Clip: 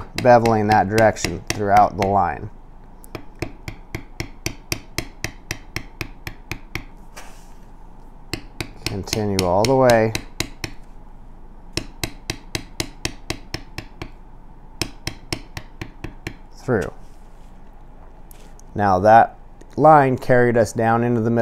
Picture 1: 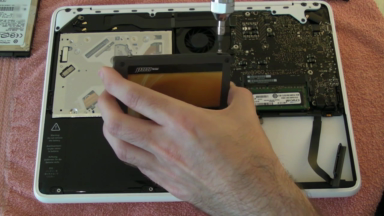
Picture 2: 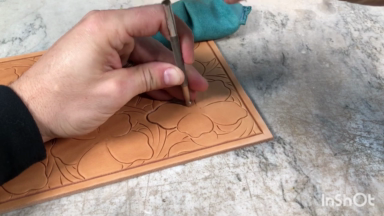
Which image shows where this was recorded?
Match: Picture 2